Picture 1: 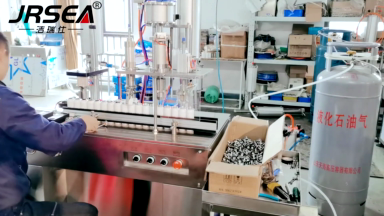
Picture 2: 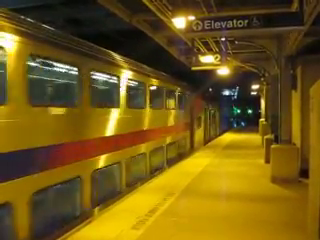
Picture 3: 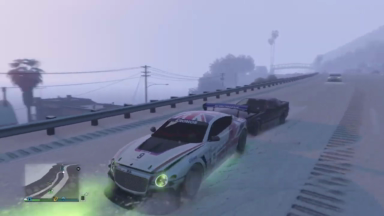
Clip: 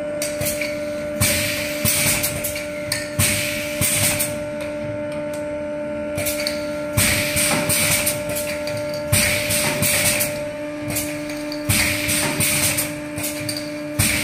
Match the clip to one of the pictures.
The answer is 1